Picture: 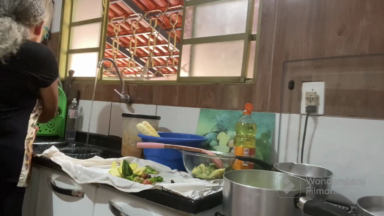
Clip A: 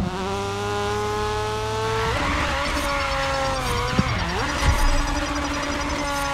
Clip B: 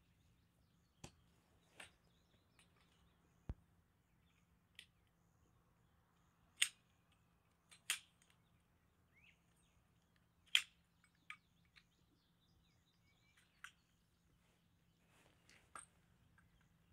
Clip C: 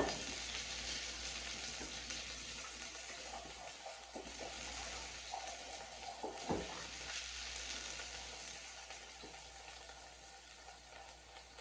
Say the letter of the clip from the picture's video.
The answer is C